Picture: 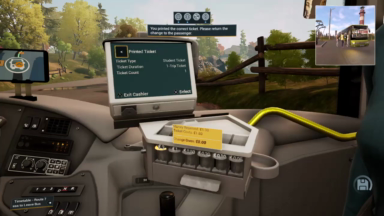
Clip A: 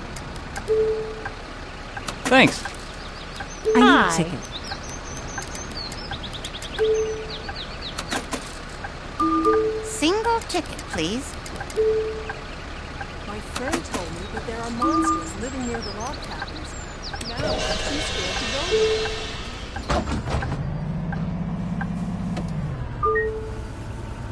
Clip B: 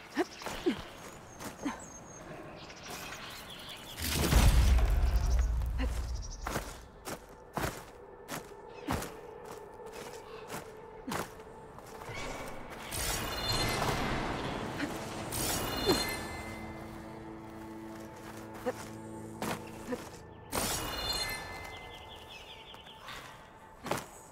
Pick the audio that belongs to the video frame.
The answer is A